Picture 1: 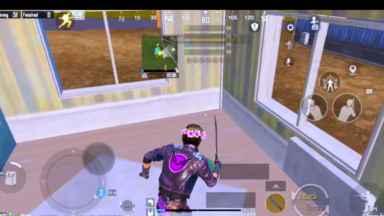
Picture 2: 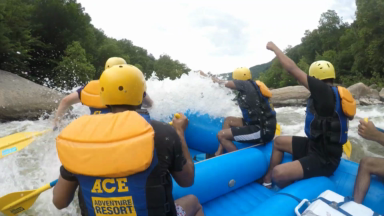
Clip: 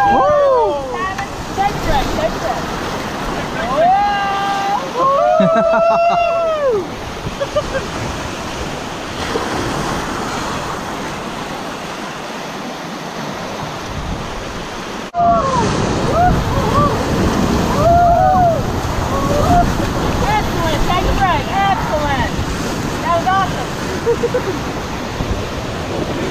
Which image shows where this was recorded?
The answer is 2